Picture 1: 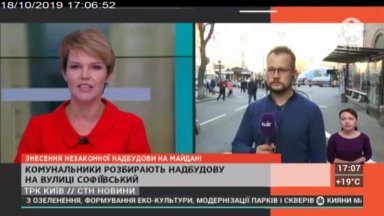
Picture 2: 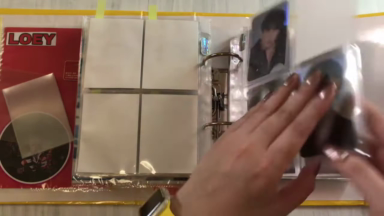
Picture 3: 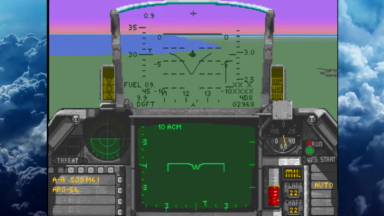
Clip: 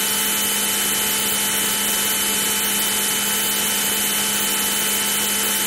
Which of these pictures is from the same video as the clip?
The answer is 3